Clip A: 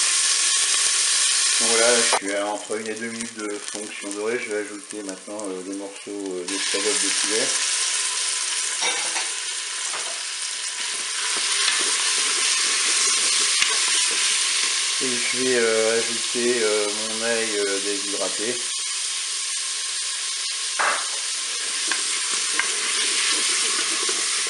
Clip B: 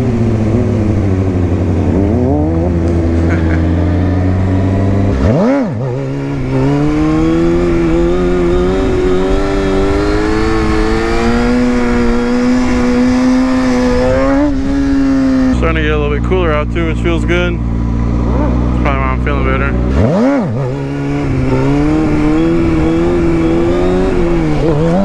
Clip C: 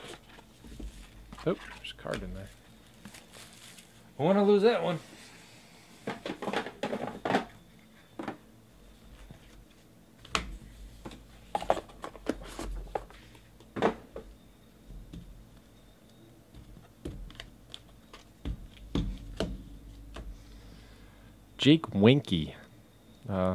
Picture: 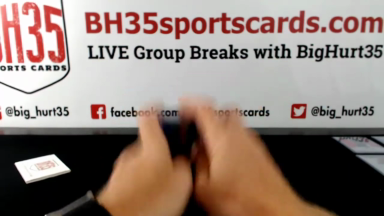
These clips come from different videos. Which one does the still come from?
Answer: C